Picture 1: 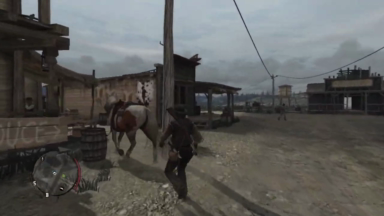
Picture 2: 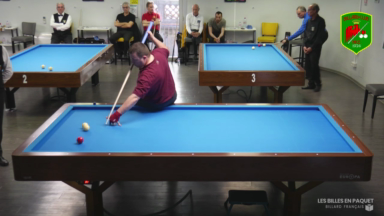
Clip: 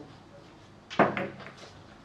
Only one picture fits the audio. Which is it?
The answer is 2